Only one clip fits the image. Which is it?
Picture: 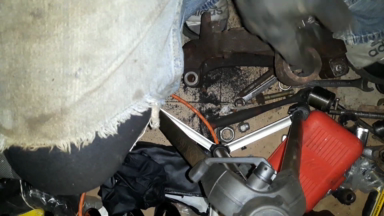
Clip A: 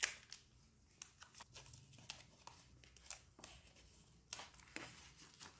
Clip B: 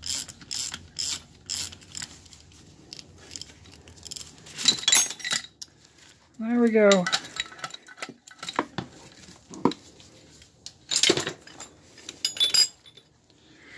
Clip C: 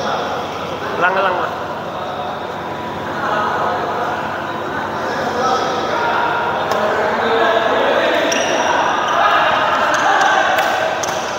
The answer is B